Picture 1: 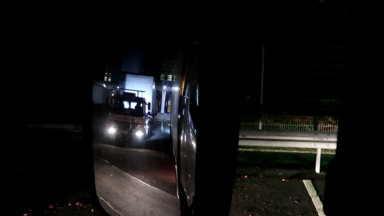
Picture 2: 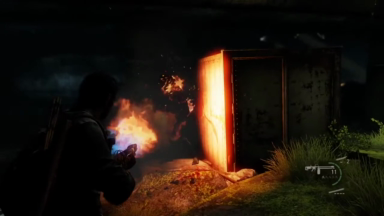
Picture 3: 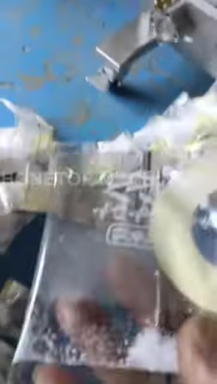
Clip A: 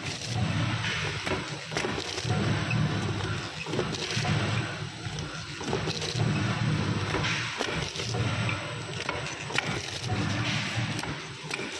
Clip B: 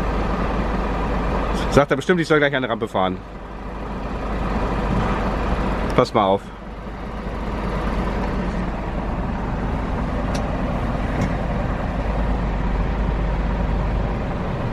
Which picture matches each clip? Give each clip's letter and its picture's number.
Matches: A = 3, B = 1